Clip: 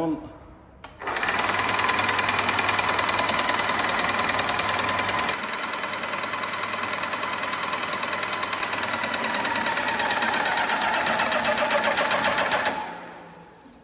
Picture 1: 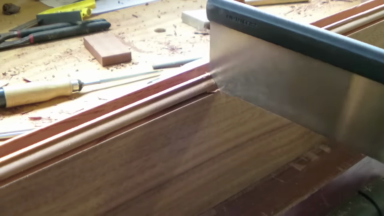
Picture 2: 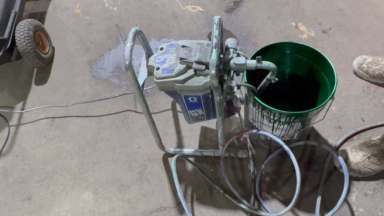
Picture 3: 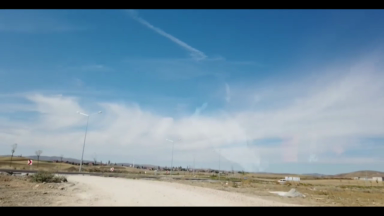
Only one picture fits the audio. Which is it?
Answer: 2